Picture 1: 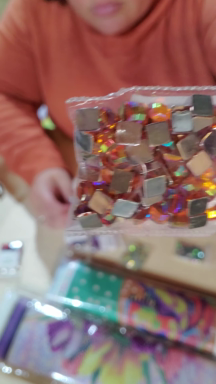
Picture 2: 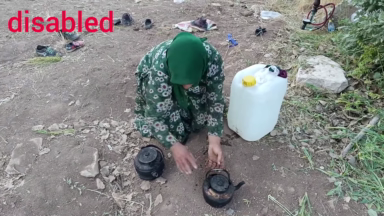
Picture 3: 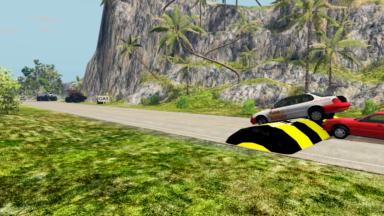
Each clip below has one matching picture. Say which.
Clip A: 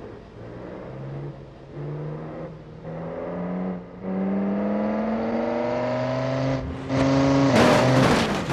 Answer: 3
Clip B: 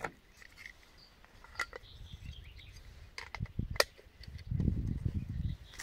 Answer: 2